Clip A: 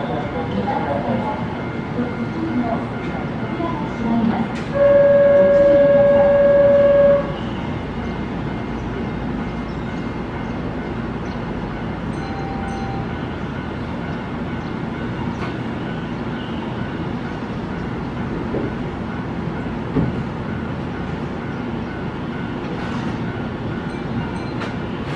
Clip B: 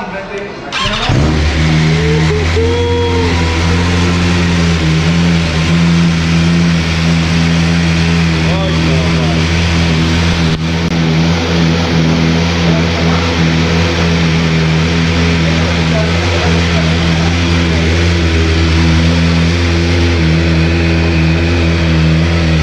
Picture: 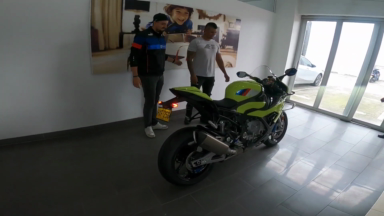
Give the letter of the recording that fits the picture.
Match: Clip B